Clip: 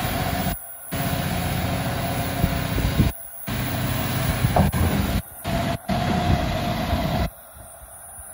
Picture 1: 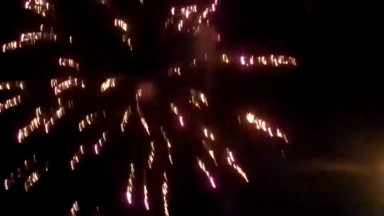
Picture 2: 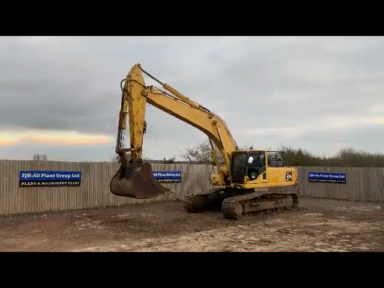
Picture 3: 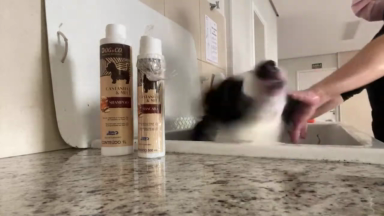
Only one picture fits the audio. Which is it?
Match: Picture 2